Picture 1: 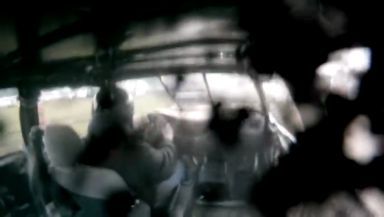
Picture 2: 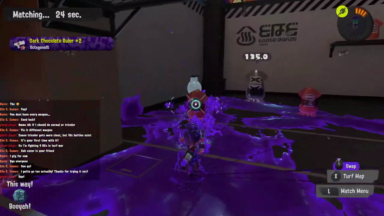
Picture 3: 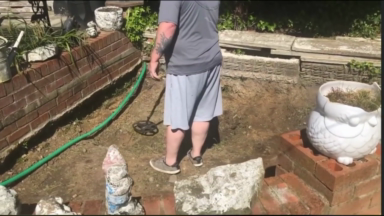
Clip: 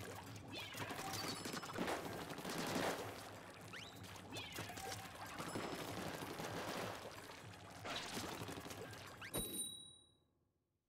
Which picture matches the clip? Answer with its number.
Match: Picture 2